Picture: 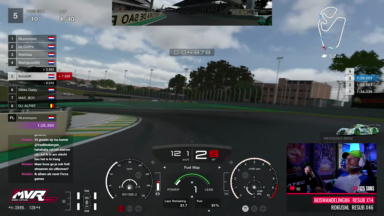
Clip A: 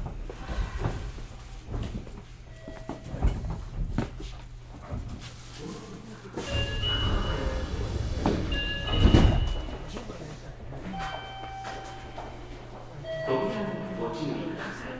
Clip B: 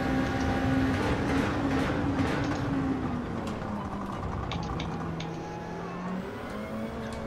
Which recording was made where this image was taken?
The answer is B